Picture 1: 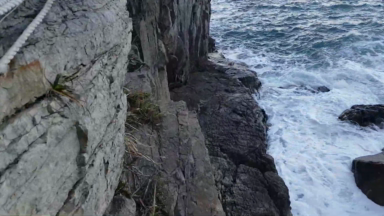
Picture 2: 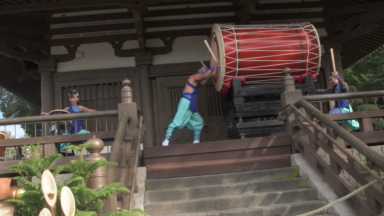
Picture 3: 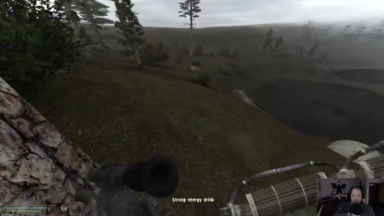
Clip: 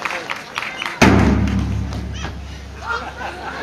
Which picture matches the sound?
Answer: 2